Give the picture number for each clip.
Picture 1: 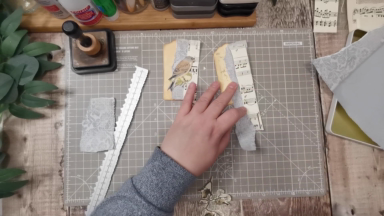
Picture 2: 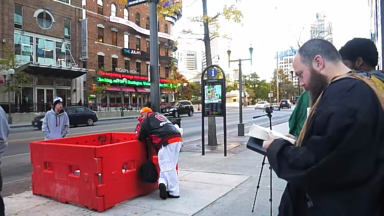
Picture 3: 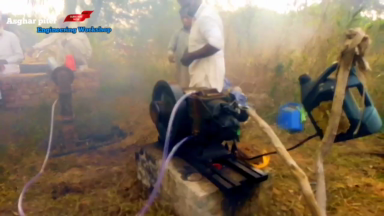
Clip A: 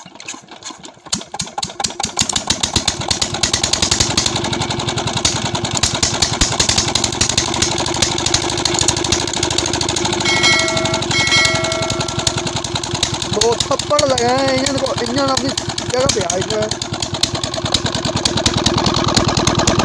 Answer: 3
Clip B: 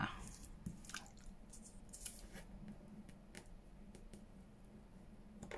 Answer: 1